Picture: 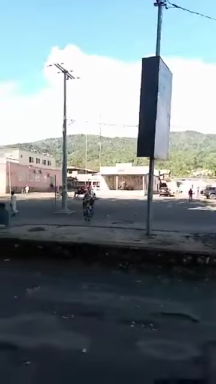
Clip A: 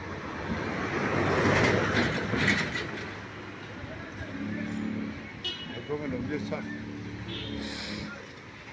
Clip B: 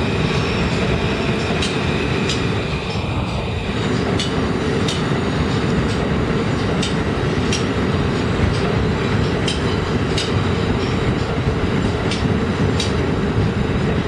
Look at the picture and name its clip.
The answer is A